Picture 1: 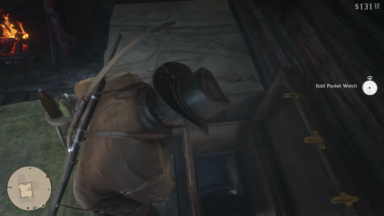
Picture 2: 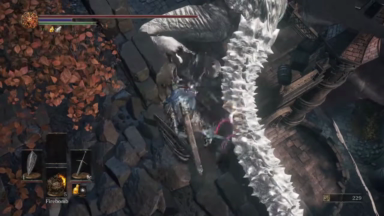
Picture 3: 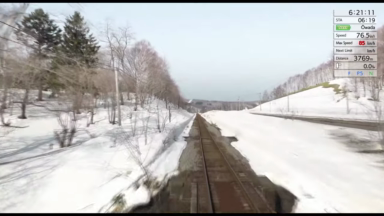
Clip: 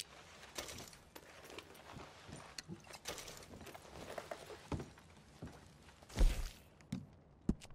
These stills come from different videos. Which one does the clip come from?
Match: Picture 1